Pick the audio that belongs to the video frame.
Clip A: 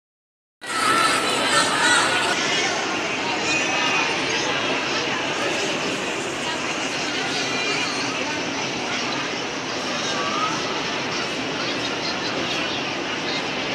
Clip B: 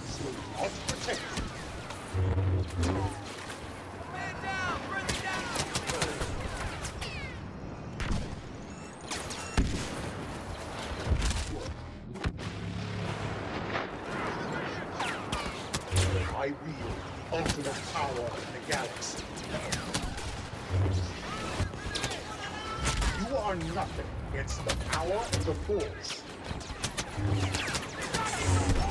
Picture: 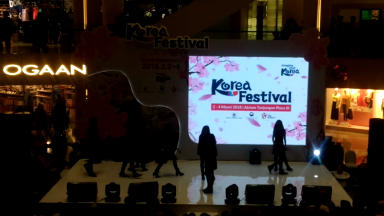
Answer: A